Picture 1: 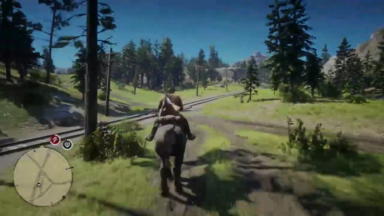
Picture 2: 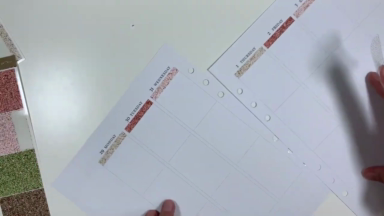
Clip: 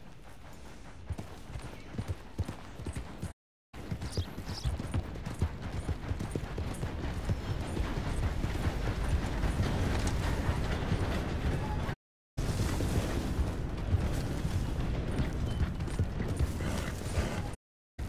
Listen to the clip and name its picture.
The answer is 1